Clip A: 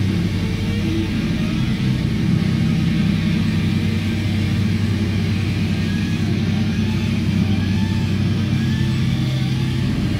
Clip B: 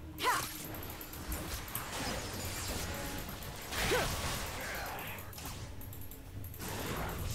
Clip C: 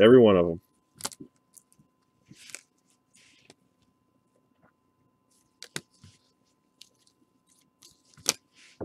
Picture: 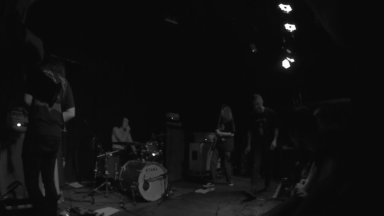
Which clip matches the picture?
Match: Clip A